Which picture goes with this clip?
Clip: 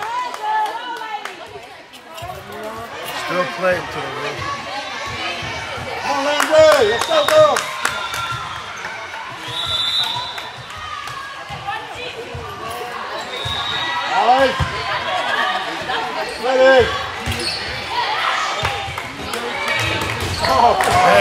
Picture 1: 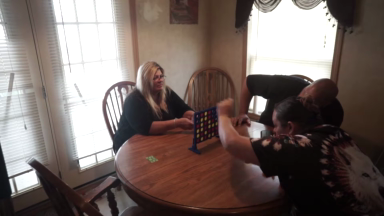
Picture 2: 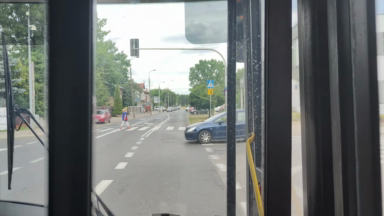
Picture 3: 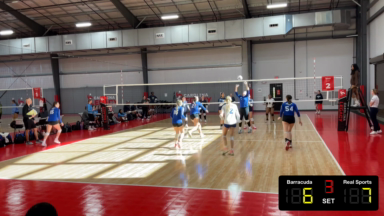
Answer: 3